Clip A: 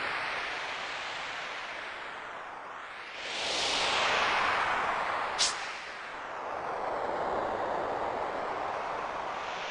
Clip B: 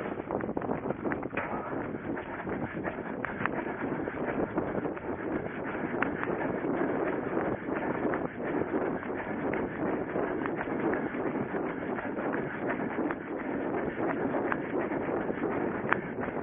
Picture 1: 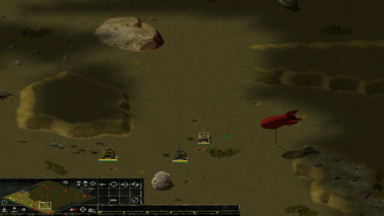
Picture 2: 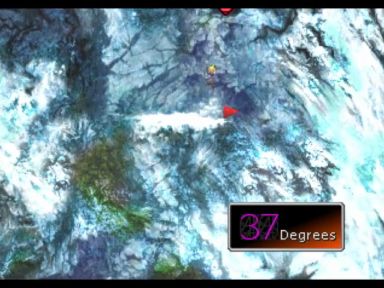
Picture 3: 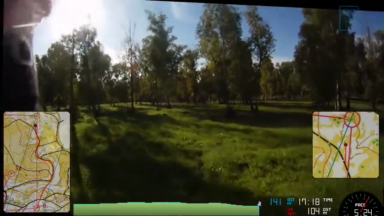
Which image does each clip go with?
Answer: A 2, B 3